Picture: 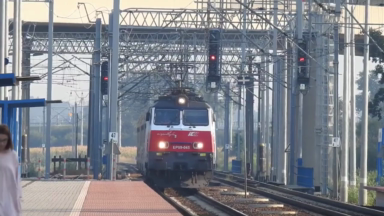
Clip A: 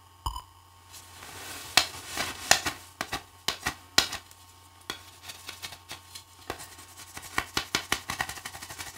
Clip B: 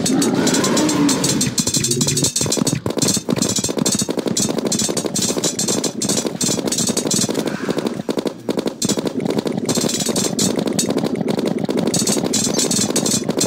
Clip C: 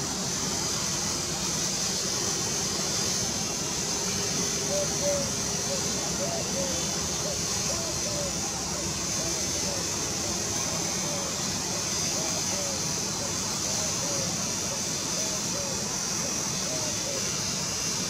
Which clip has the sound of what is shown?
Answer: C